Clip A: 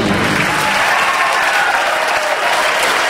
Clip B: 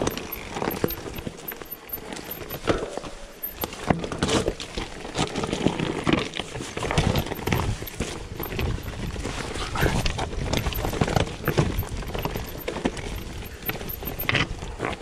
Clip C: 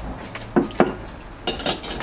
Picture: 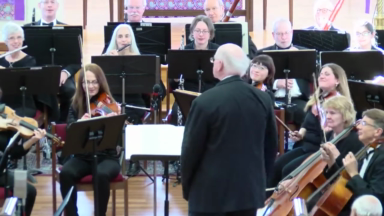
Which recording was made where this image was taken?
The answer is A